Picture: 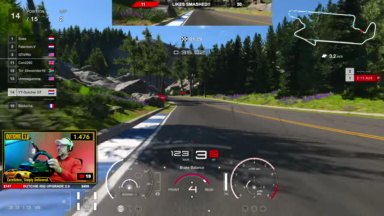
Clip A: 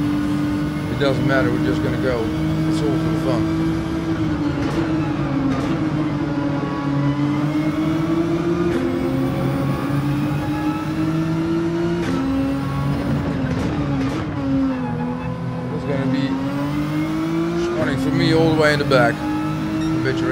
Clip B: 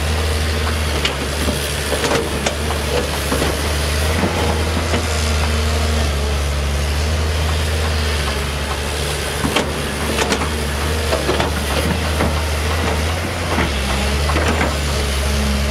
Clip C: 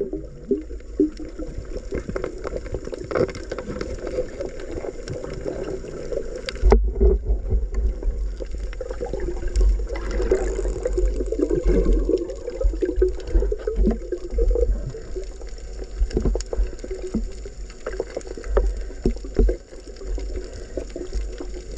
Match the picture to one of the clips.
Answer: A